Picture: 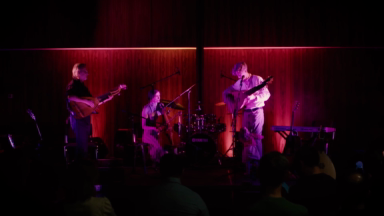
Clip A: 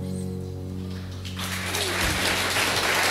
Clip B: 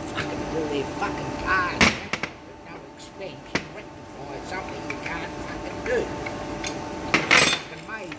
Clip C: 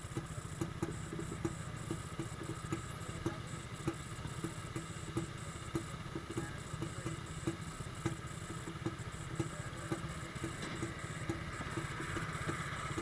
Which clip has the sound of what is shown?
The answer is A